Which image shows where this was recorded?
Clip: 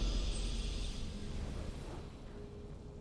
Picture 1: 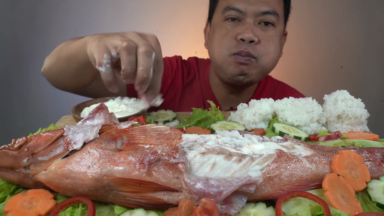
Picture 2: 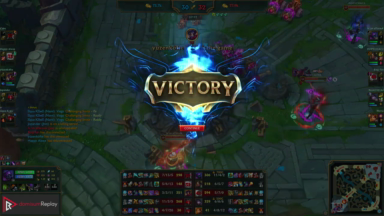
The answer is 2